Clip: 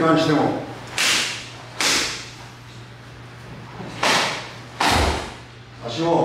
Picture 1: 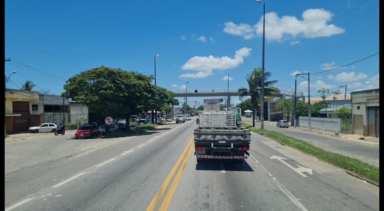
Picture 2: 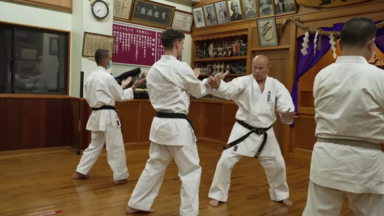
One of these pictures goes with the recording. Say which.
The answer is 2